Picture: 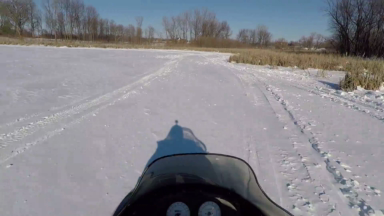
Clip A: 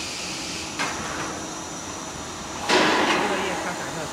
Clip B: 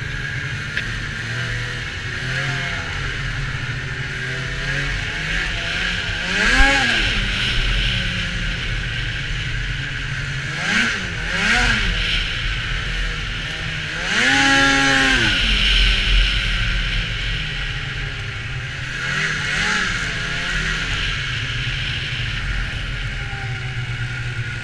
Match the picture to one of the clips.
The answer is B